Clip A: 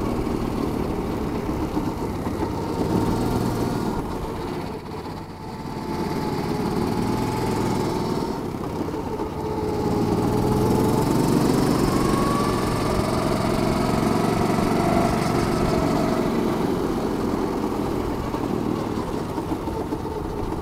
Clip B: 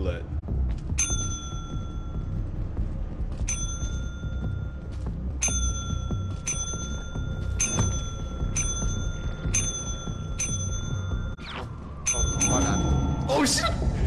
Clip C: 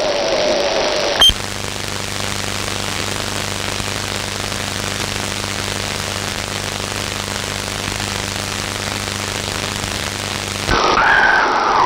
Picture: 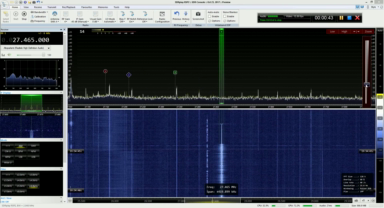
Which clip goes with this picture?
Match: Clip C